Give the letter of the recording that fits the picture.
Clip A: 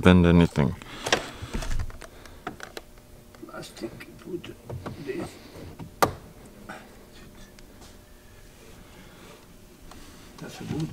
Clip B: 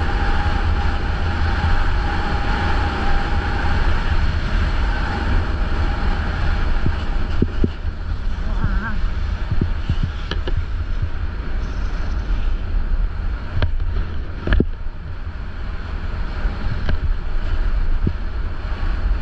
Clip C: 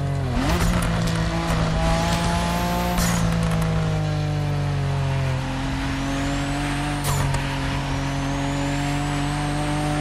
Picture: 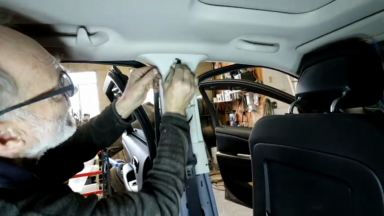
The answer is A